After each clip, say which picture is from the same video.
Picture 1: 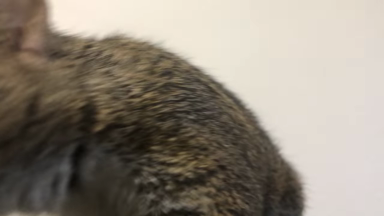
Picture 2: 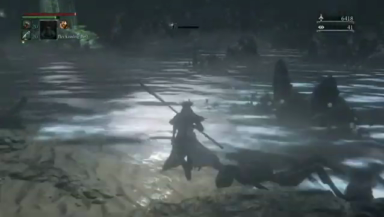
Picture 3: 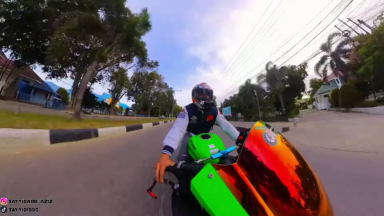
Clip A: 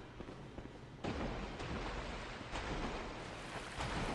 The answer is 2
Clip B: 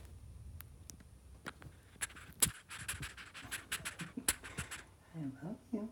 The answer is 1